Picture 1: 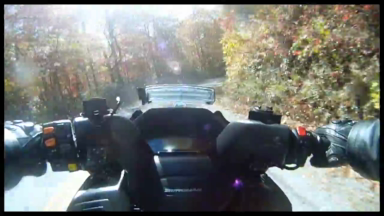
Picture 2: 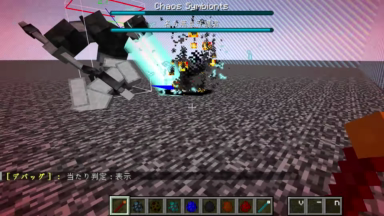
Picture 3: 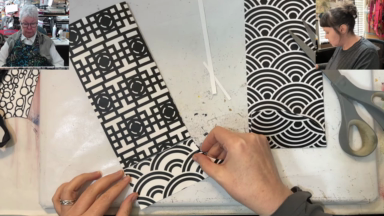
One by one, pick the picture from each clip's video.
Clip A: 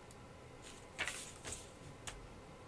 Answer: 3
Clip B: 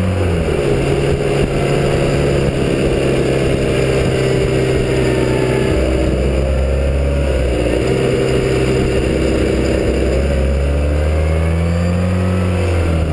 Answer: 1